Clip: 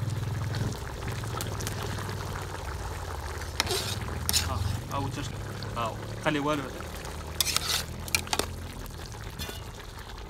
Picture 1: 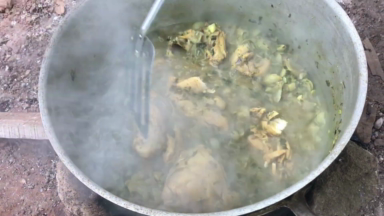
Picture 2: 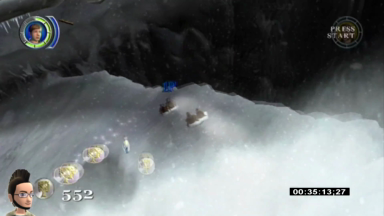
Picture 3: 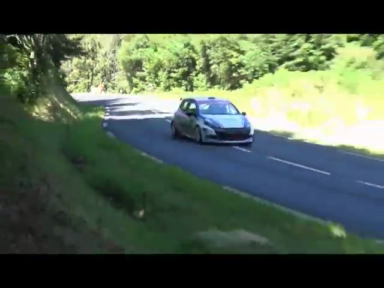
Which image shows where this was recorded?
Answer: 1